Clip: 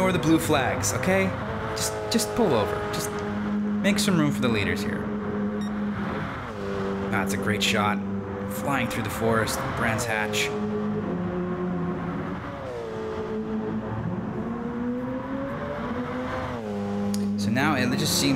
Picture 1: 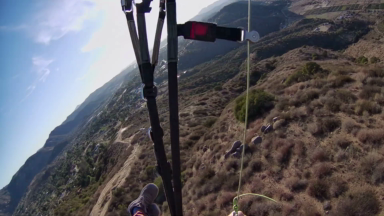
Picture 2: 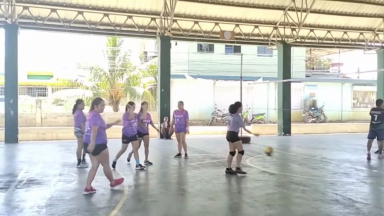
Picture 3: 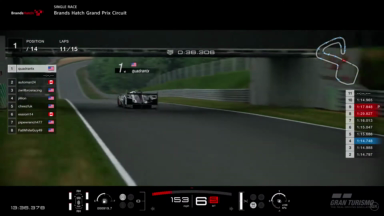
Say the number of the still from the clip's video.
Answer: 3